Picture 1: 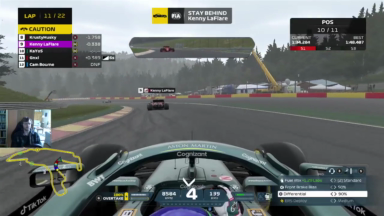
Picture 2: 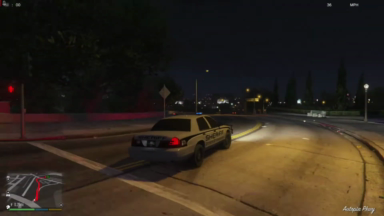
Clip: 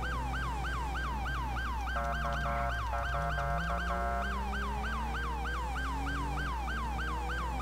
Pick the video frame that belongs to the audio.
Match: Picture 2